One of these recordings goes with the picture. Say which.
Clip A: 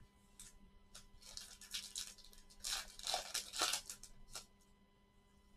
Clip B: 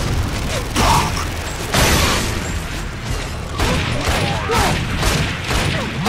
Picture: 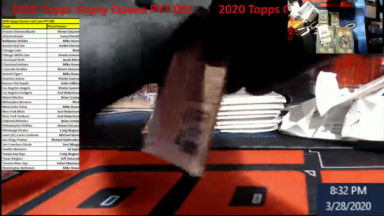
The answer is A